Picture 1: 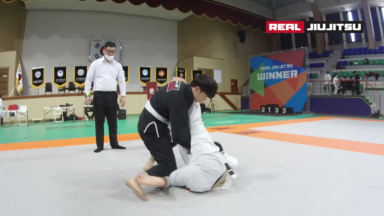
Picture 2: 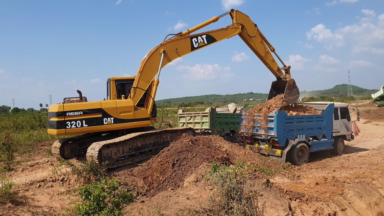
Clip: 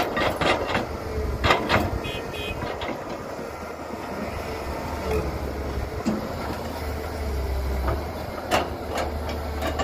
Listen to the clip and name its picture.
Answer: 2